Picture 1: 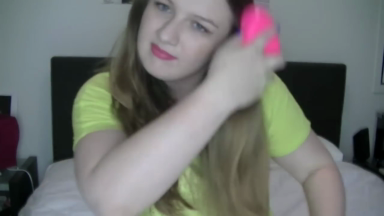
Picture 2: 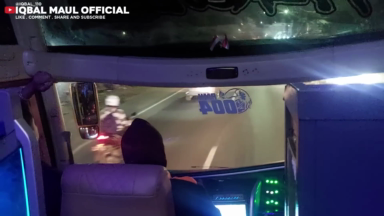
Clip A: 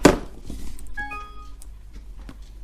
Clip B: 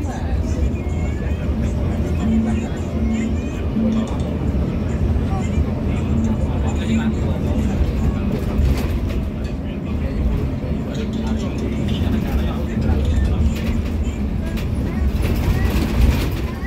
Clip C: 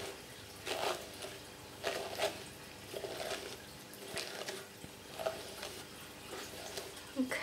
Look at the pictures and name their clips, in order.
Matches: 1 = C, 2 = B